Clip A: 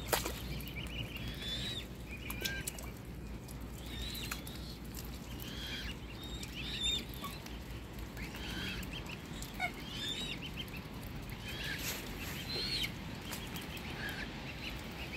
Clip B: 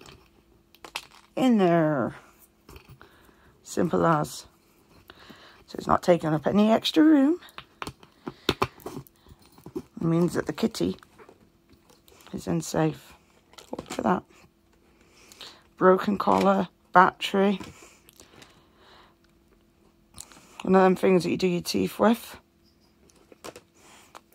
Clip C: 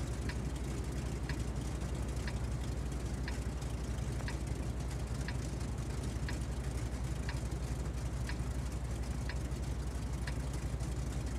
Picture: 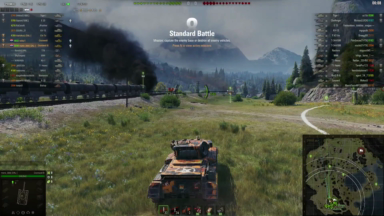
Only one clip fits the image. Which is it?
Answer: C